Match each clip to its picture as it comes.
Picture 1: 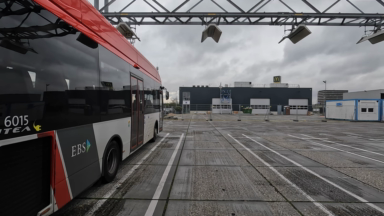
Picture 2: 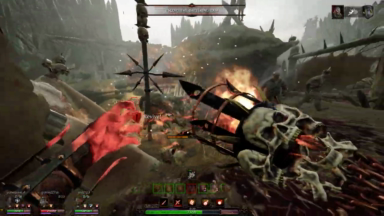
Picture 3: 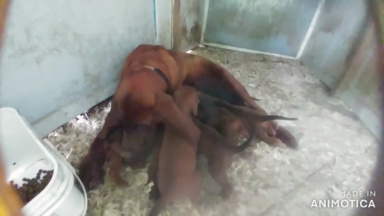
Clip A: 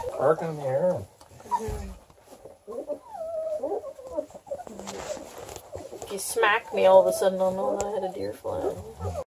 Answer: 3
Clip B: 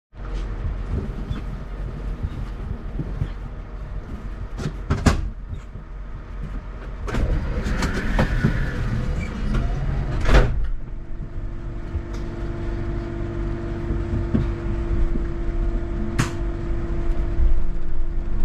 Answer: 1